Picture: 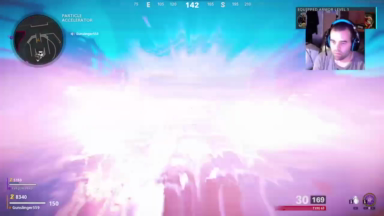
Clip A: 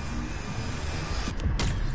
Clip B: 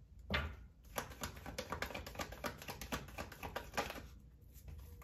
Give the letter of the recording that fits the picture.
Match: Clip A